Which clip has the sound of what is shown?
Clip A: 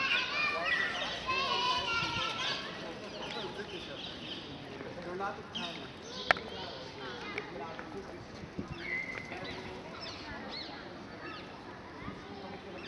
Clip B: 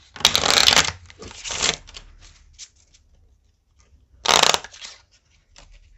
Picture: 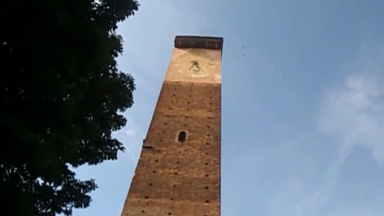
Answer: A